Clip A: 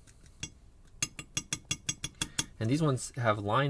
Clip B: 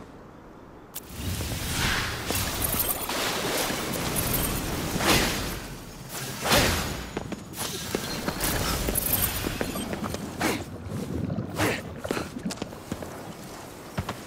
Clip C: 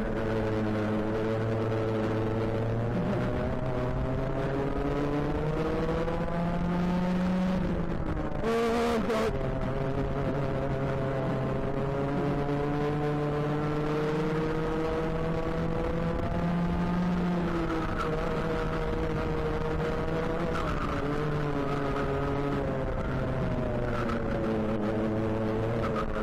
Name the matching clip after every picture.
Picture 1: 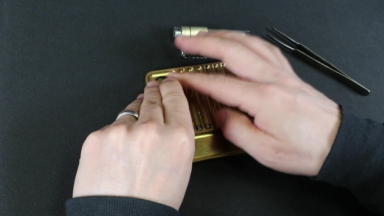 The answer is A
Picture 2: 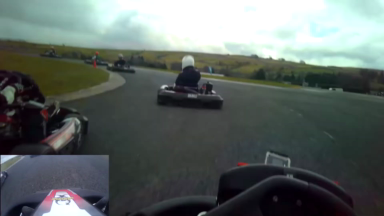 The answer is C